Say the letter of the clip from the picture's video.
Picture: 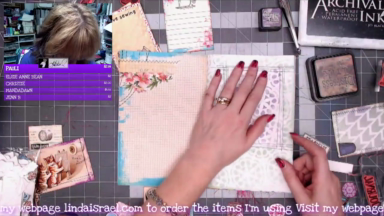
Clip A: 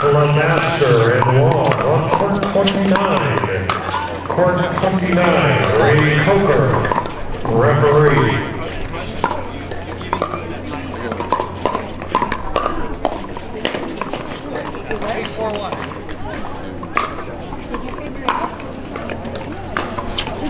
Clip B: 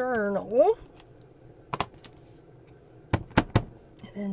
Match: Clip B